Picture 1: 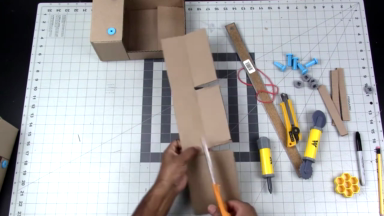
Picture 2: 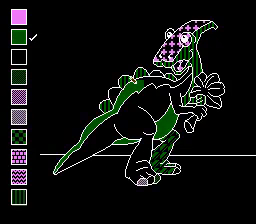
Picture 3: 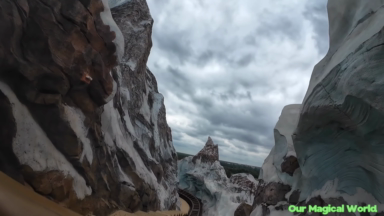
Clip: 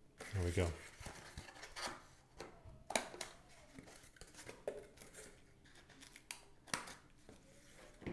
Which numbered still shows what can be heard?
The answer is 1